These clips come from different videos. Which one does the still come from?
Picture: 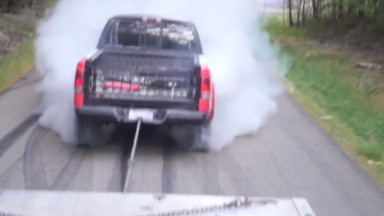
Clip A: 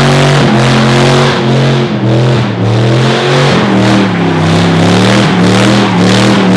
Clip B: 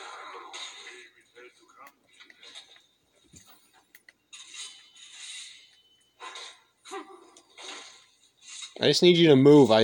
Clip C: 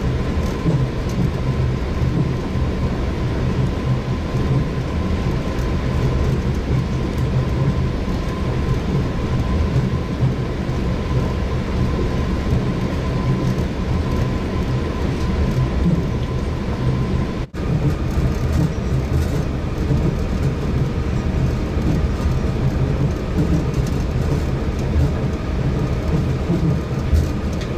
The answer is A